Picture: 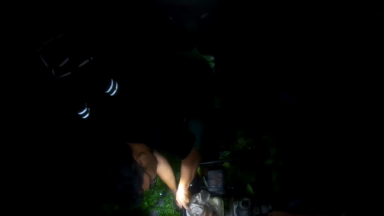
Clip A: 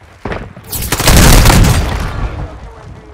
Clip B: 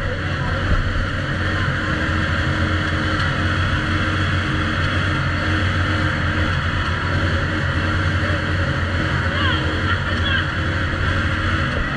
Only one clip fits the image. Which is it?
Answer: B